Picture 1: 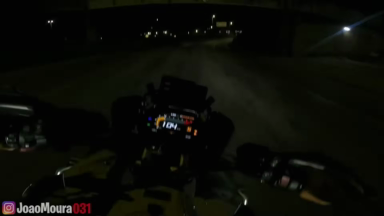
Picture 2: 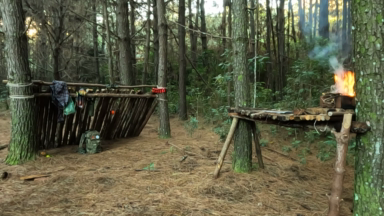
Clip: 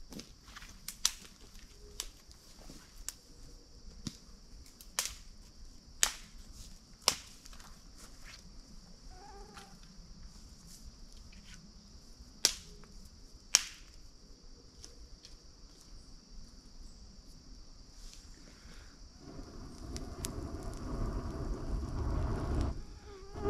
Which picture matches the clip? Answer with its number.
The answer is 2